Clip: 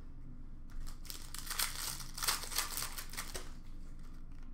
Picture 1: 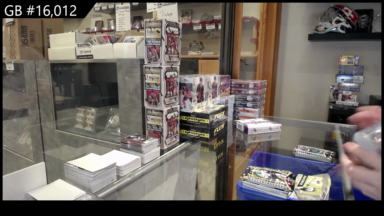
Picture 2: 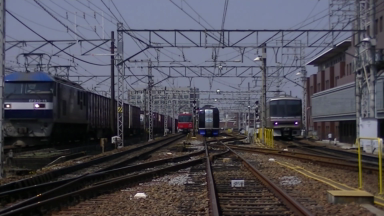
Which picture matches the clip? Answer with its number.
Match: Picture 1